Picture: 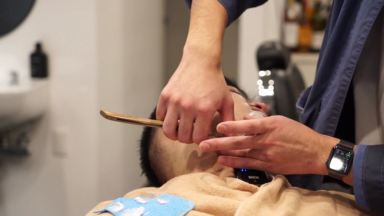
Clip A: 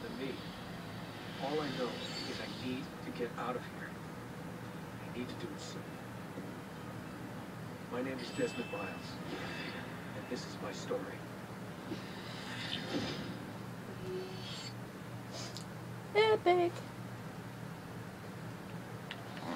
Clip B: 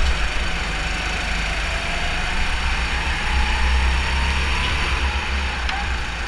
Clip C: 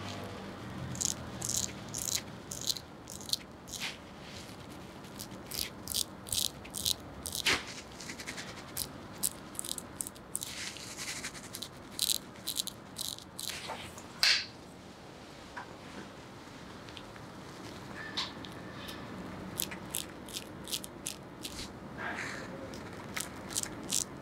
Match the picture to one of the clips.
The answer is C